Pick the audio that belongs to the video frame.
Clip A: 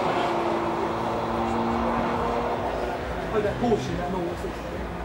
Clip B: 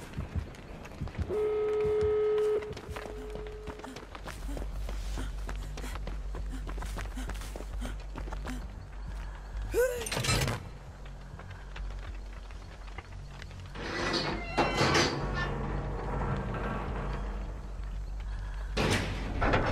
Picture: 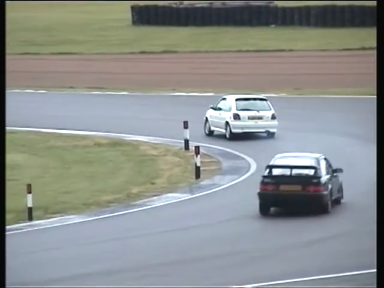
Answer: A